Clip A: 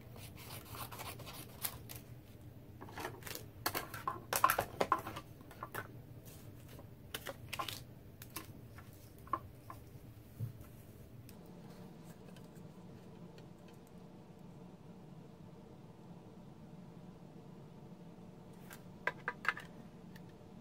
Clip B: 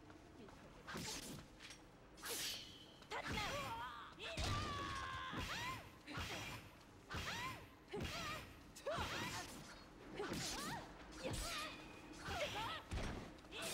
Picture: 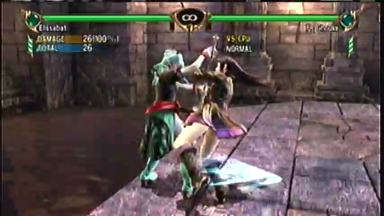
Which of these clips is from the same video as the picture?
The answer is B